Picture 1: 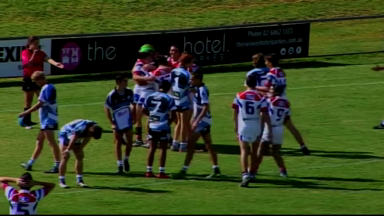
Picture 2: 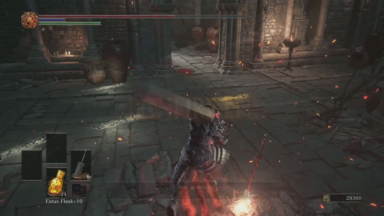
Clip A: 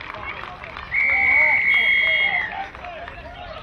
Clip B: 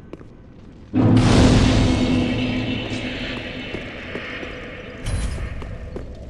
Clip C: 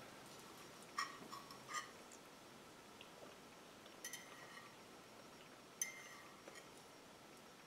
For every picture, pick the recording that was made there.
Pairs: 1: A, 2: B